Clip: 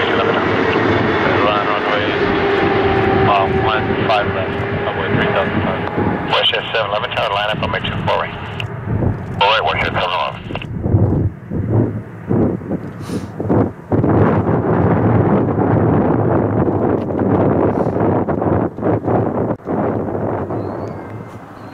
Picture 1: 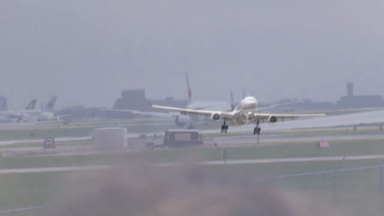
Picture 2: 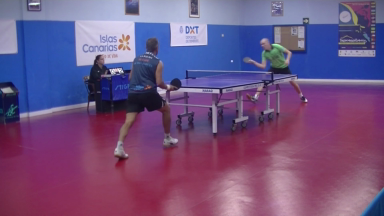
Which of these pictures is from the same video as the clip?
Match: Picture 1